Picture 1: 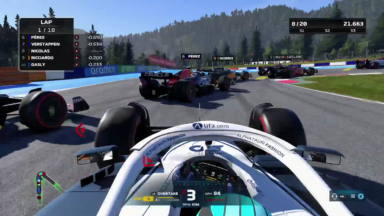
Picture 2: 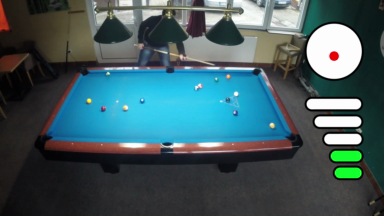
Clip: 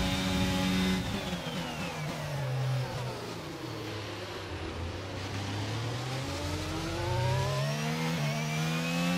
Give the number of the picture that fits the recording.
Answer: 1